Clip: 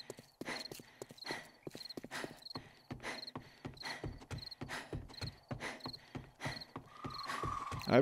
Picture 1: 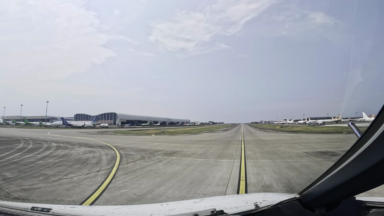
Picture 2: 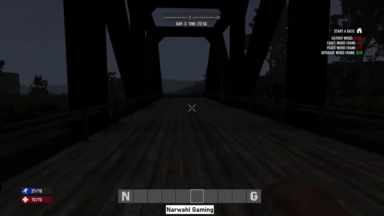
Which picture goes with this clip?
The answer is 2